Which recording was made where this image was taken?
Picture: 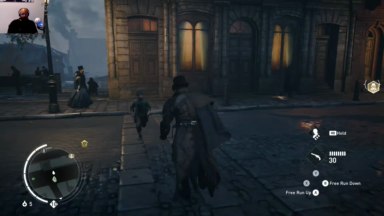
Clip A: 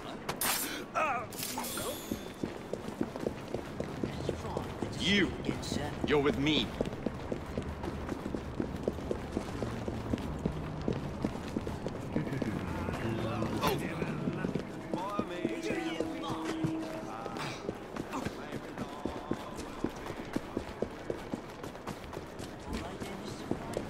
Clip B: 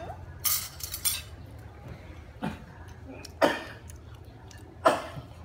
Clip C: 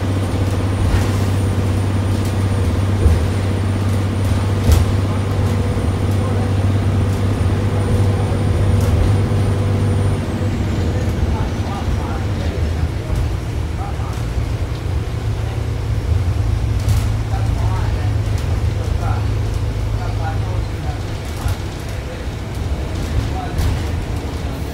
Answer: A